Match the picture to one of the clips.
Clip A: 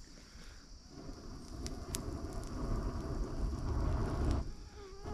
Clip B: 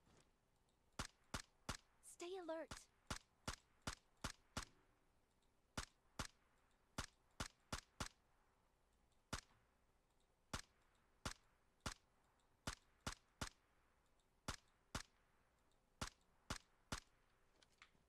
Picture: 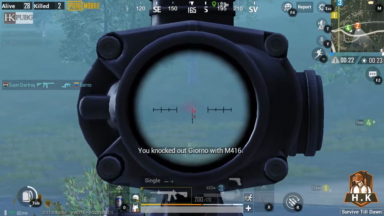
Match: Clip B